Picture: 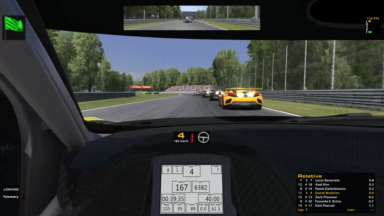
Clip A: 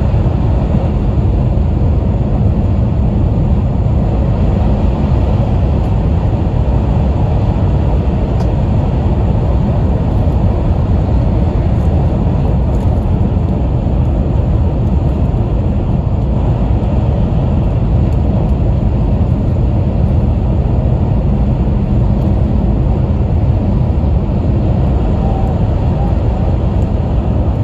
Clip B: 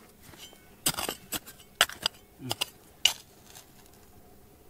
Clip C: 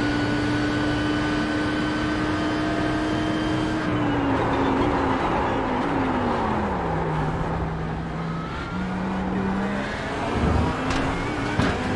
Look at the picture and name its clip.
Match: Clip C